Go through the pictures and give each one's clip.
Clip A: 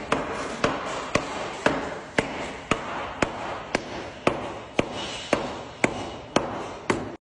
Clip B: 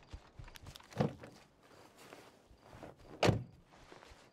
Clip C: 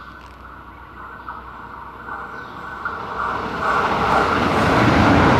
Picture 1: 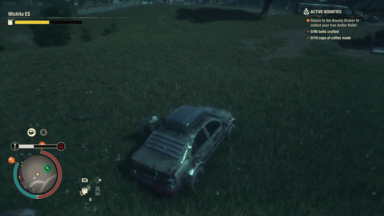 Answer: B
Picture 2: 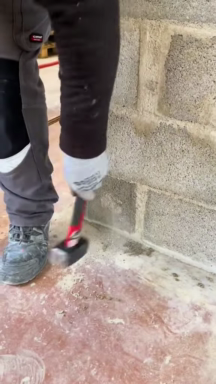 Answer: A